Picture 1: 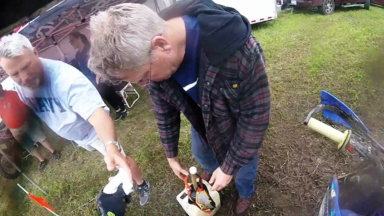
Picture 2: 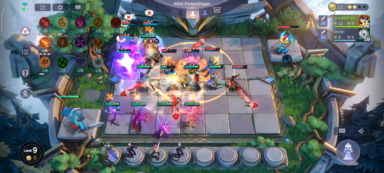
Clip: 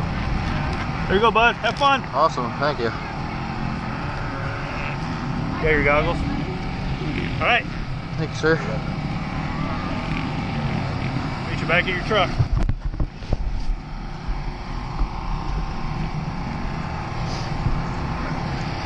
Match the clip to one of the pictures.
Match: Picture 1